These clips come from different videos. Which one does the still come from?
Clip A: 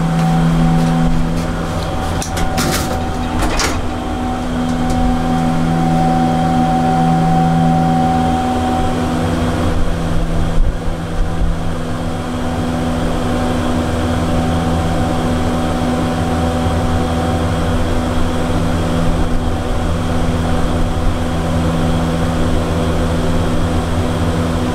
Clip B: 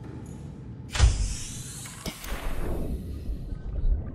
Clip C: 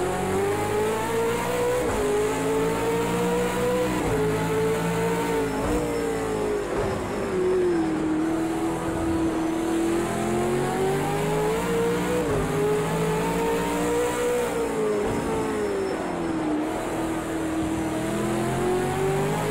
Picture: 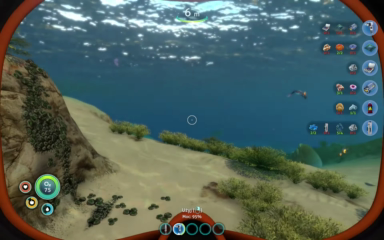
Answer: B